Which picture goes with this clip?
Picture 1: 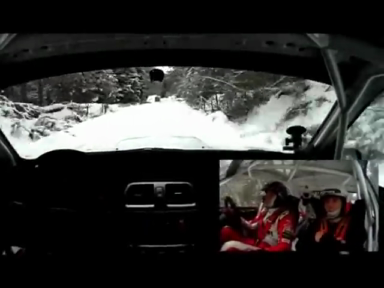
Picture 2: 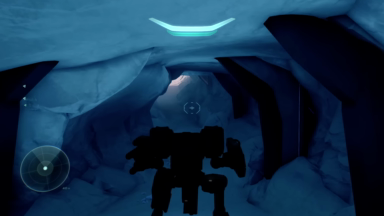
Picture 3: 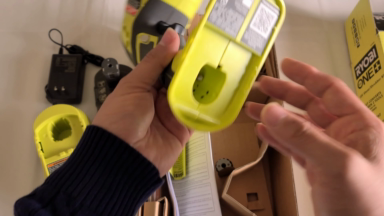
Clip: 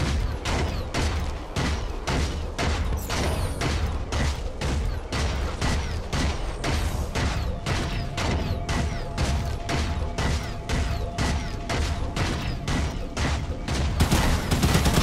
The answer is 2